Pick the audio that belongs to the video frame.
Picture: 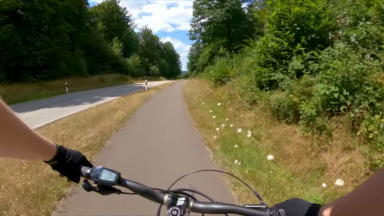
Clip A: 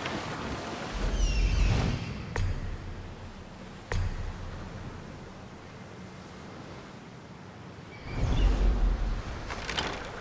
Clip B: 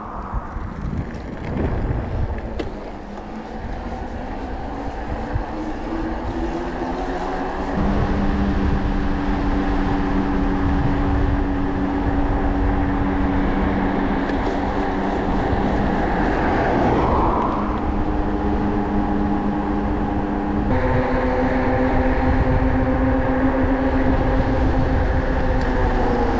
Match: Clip B